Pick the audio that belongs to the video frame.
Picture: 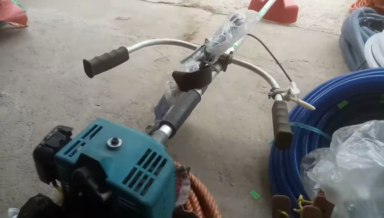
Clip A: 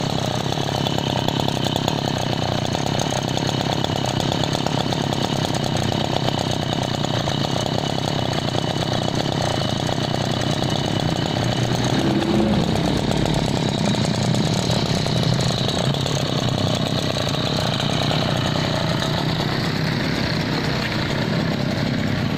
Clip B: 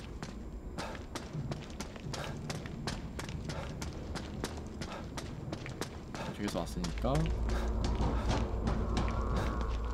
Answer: A